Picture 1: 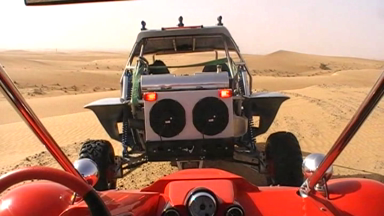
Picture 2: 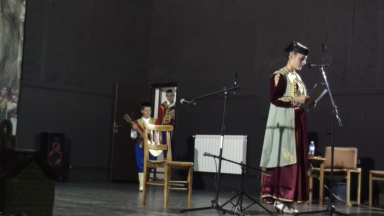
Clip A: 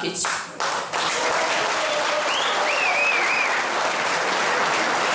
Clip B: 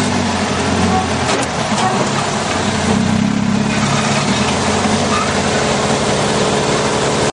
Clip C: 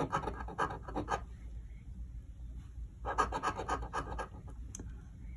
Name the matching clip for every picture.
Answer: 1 B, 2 A